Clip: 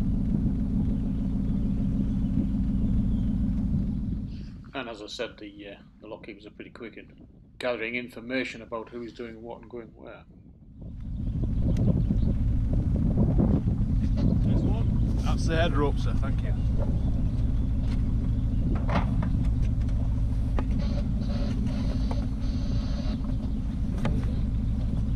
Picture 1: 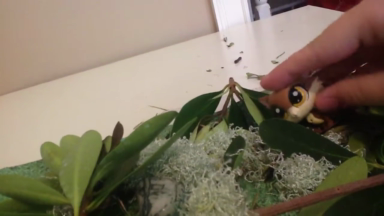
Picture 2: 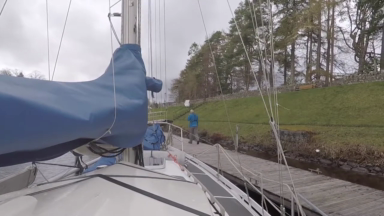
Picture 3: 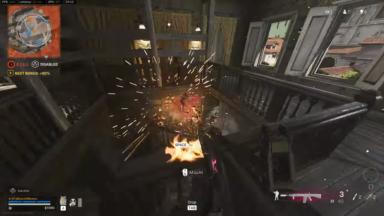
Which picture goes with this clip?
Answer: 2